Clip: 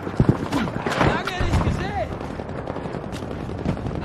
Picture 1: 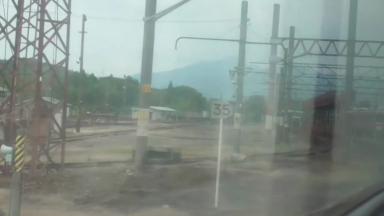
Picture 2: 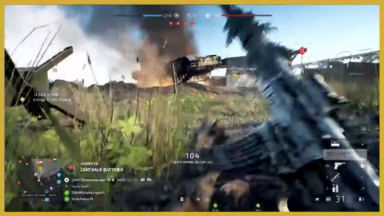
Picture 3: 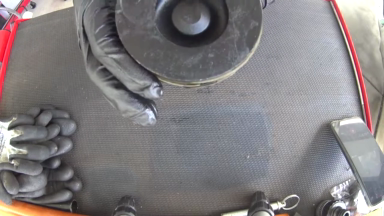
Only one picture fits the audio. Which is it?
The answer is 2